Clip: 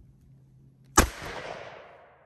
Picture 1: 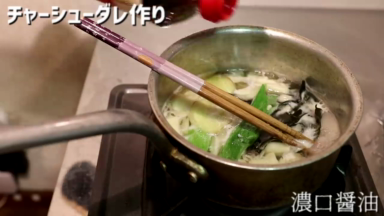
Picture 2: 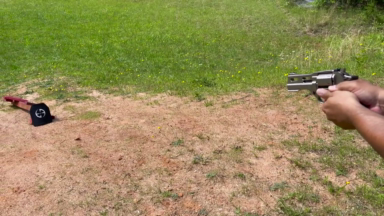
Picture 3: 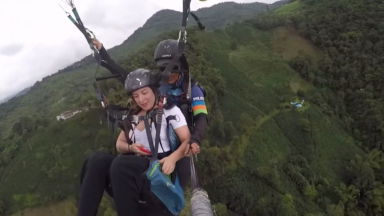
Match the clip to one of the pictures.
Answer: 2